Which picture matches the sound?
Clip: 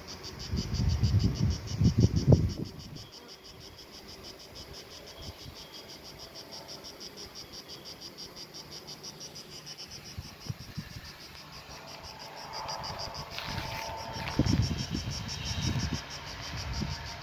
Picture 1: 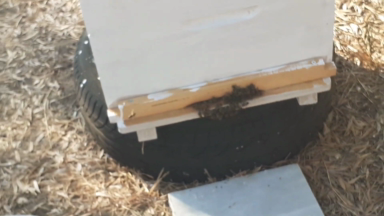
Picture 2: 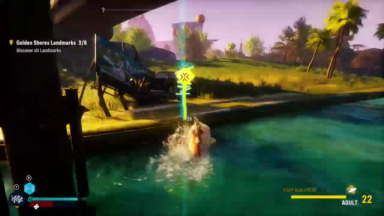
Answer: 1